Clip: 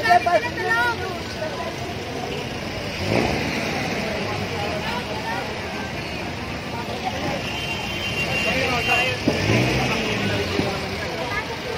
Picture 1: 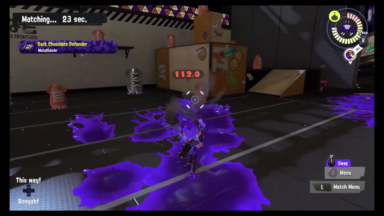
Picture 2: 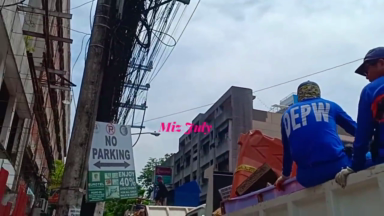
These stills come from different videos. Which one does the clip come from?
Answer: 2